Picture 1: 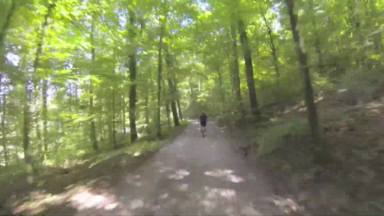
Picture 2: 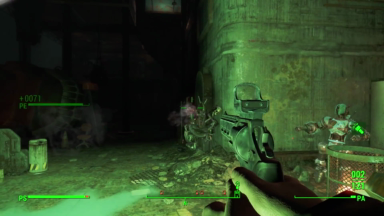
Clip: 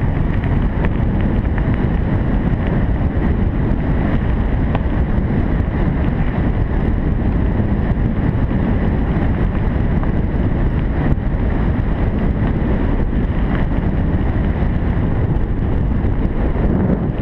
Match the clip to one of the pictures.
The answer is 1